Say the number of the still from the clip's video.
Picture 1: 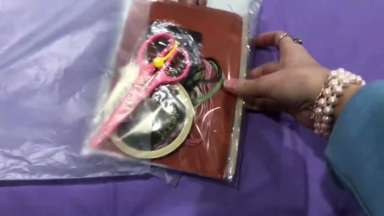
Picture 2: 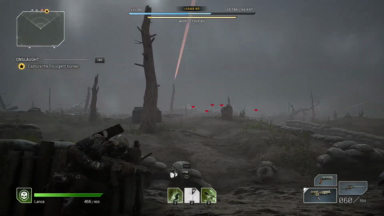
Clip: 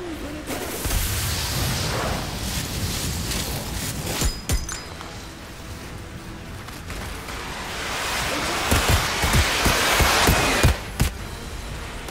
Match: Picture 2